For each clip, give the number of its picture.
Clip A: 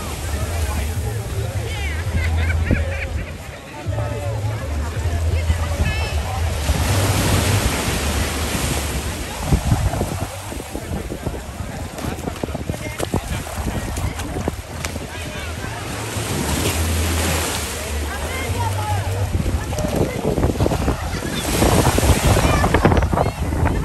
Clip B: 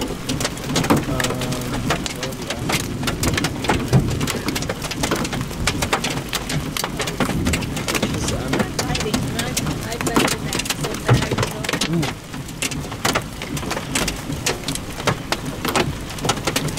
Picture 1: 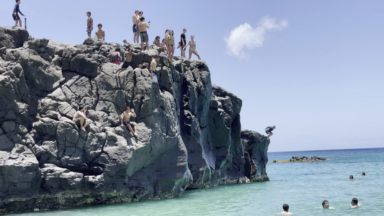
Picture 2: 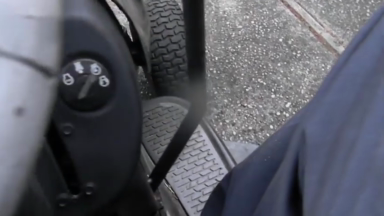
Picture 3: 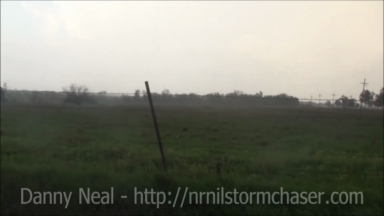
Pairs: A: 1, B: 3